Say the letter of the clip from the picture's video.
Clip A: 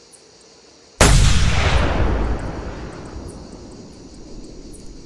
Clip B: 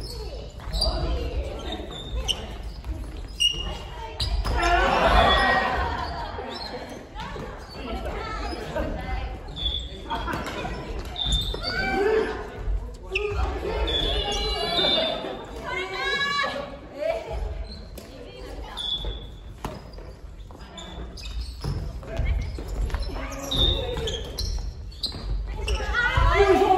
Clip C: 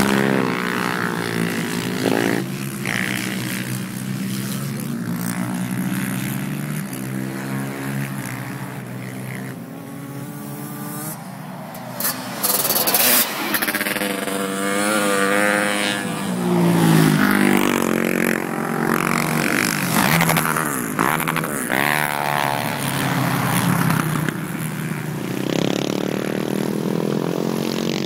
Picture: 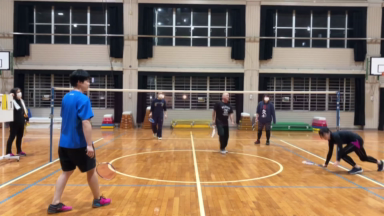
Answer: B